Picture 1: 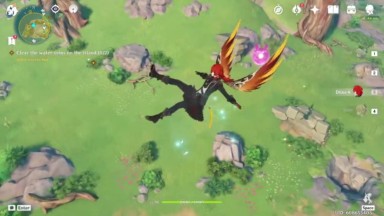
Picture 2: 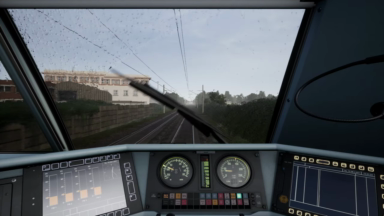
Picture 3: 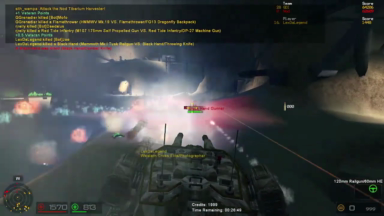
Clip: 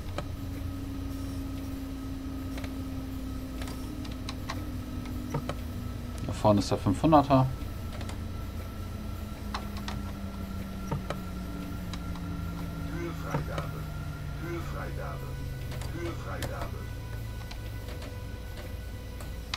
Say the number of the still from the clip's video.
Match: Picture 2